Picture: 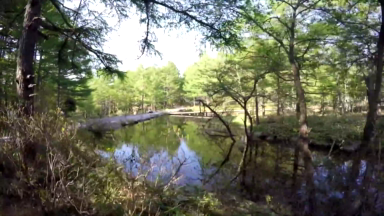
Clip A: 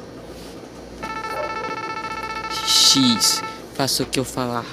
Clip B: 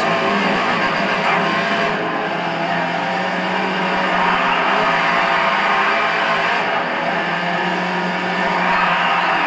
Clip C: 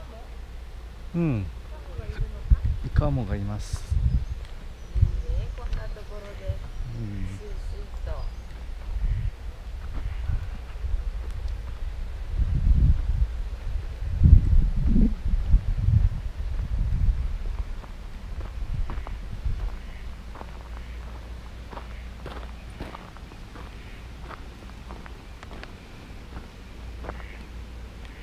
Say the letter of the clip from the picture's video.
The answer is C